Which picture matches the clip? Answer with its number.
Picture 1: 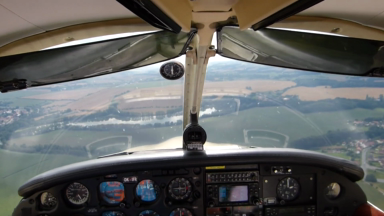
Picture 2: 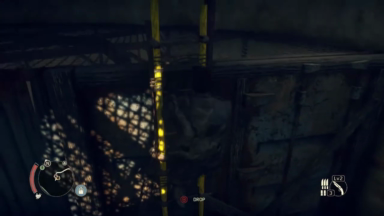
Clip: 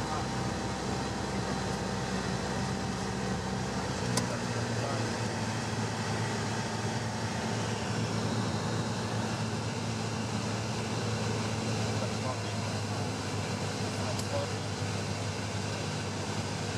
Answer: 1